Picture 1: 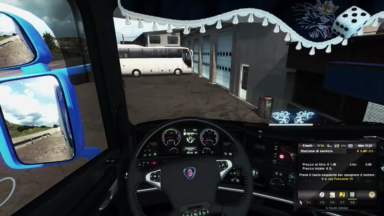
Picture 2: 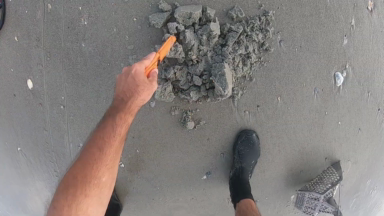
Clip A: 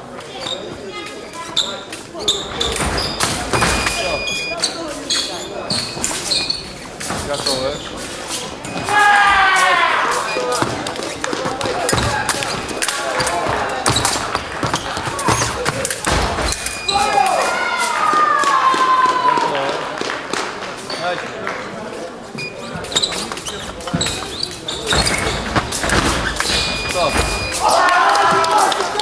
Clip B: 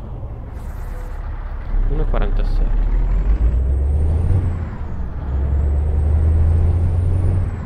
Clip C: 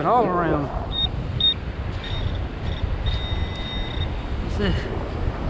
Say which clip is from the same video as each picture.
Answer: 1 B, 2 C